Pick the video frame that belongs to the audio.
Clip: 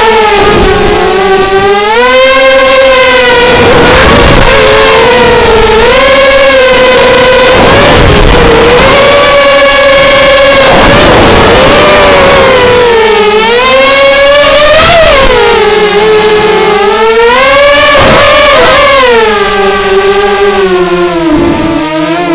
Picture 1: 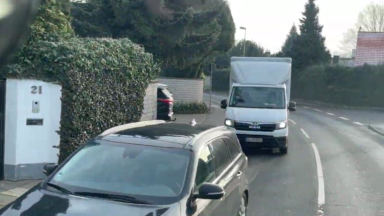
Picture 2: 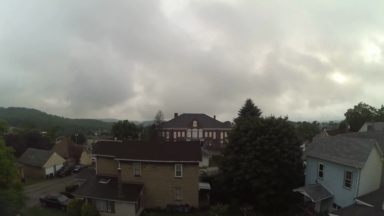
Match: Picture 2